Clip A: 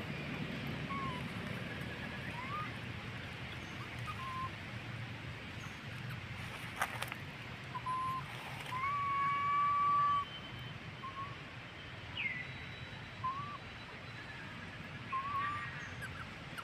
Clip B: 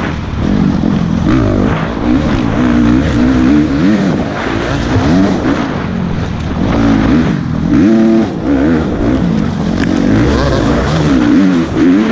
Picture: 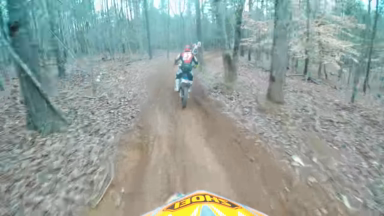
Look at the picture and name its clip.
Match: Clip B